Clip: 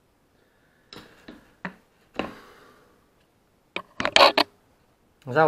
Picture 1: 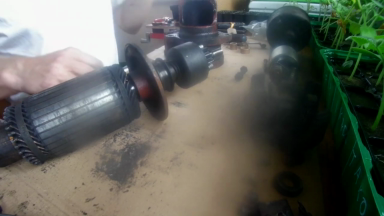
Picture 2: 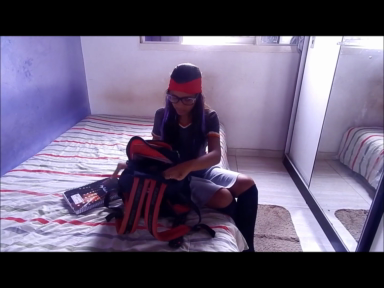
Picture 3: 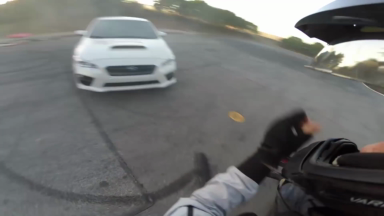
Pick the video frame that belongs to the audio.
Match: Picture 1